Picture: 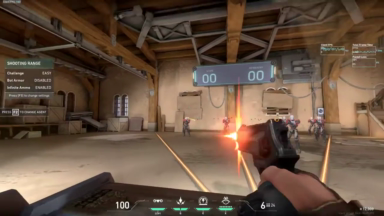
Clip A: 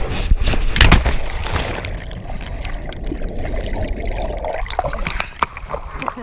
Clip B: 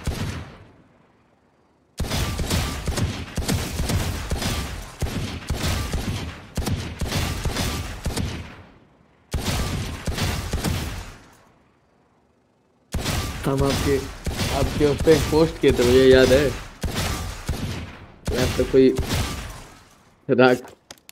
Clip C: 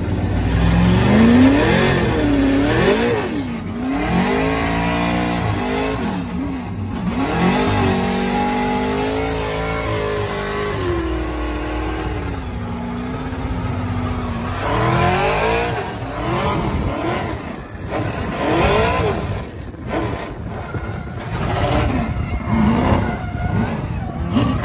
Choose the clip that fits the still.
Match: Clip B